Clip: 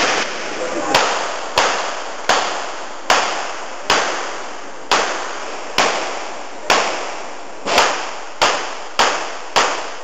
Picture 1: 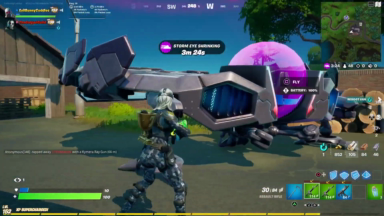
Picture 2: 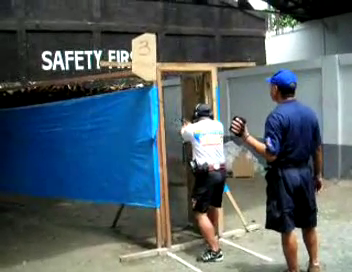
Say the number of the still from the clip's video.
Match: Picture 2